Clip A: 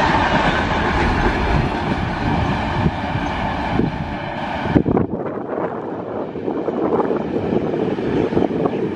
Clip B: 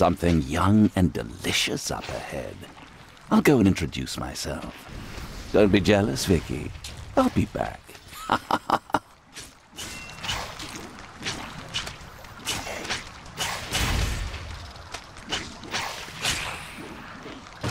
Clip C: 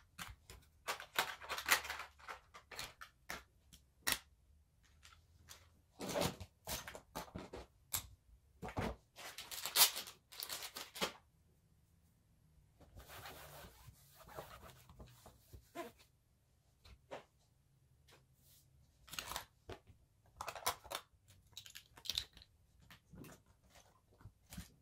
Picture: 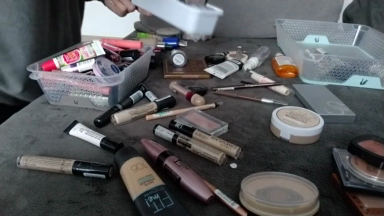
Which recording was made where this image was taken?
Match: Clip C